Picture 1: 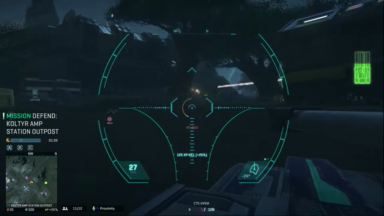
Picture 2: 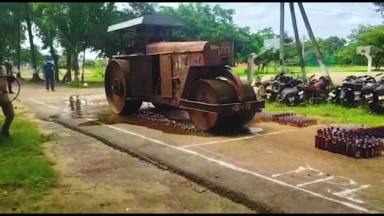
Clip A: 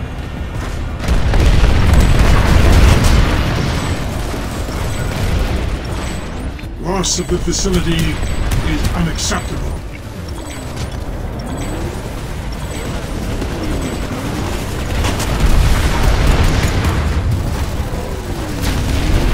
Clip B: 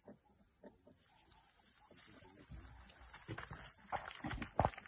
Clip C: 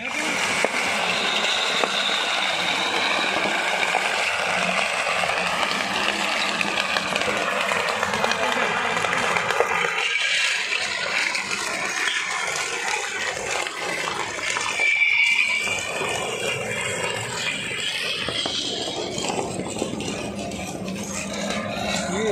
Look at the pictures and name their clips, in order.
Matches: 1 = A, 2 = C